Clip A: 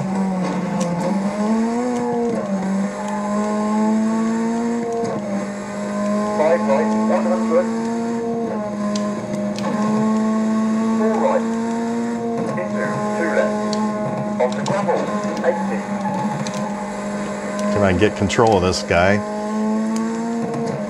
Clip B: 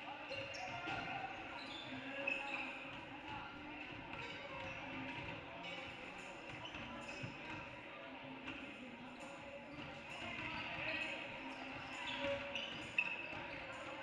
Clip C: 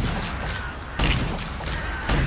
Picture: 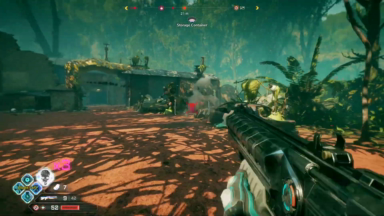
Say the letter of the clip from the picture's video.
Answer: C